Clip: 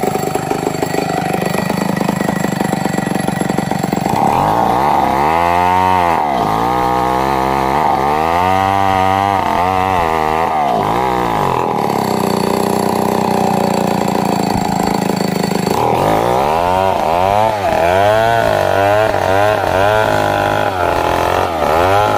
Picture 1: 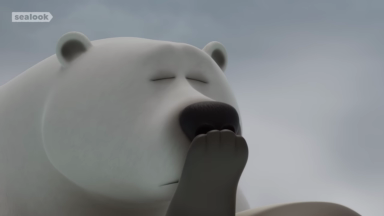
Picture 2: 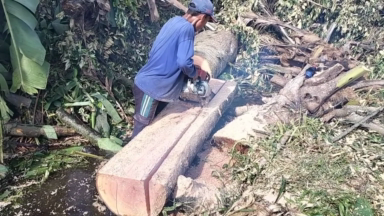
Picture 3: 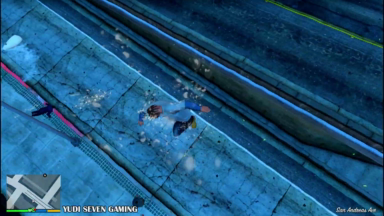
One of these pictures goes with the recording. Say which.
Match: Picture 2